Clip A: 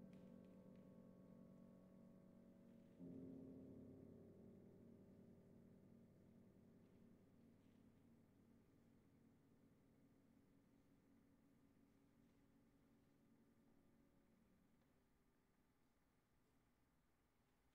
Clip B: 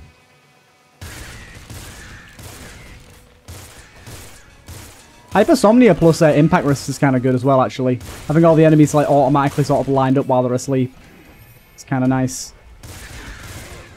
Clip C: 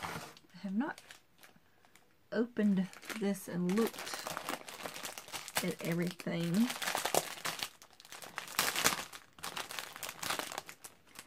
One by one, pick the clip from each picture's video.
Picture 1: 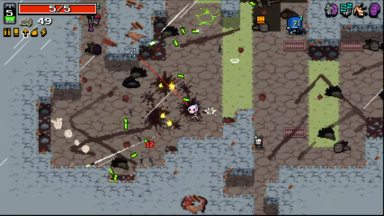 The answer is B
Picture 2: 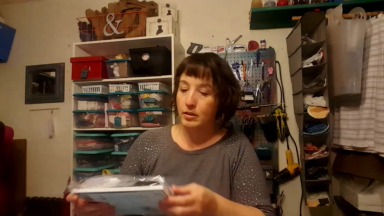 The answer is C